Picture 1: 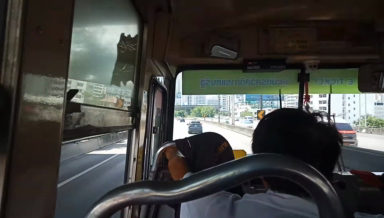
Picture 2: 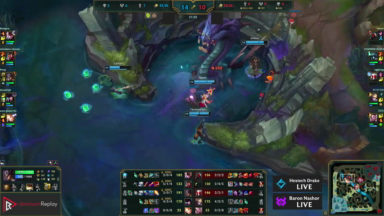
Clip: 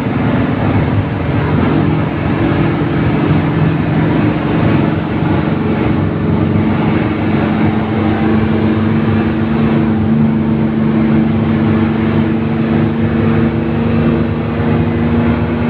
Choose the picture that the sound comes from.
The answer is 1